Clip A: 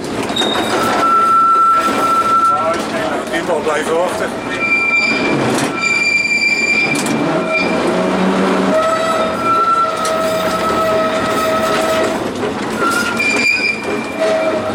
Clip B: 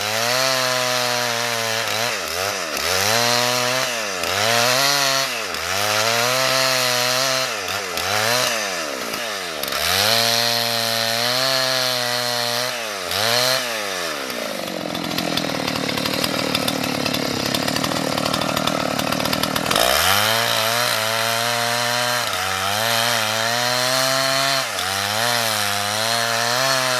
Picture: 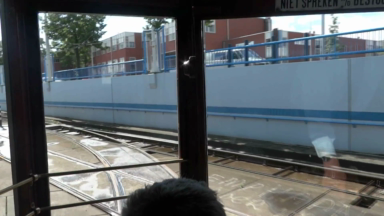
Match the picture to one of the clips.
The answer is A